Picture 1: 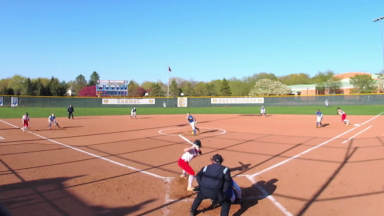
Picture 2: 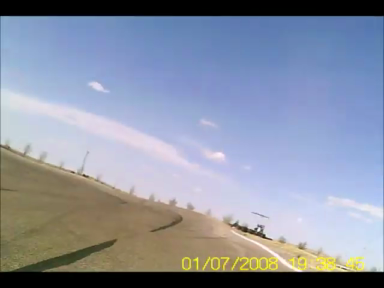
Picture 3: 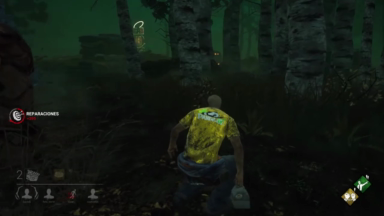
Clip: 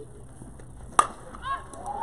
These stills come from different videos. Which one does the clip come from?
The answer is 1